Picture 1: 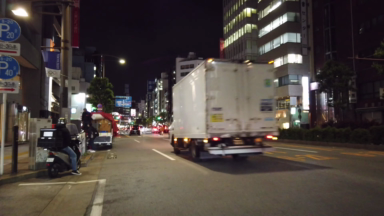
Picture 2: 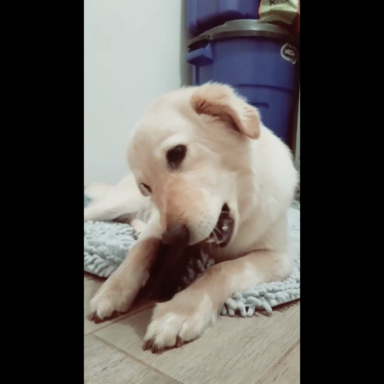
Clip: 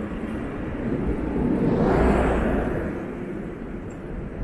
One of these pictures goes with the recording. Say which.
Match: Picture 1